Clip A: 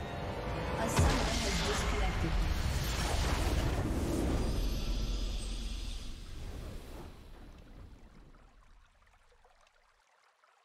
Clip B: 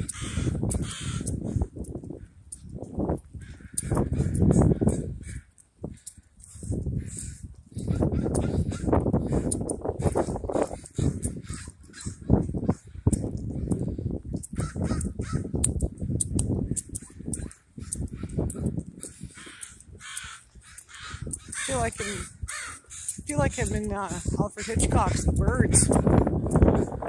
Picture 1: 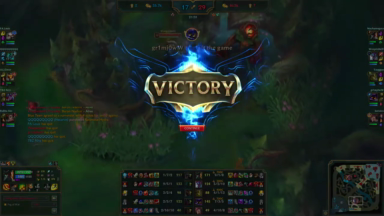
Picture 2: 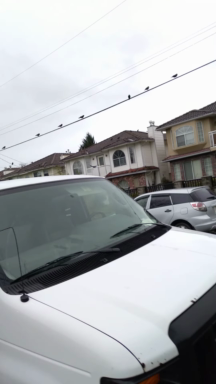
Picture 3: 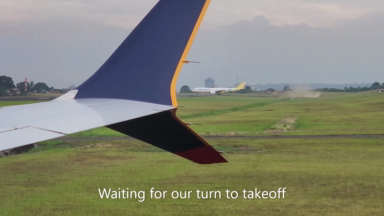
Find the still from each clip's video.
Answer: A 1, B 2